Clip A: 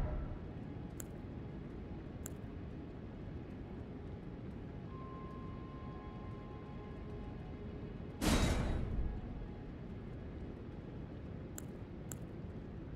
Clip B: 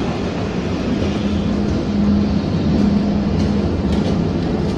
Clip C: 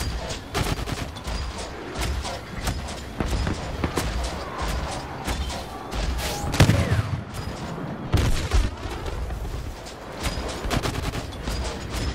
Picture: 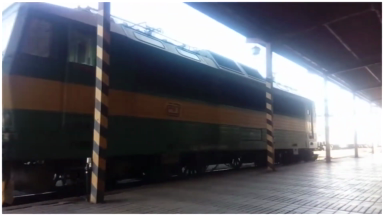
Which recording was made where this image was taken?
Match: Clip B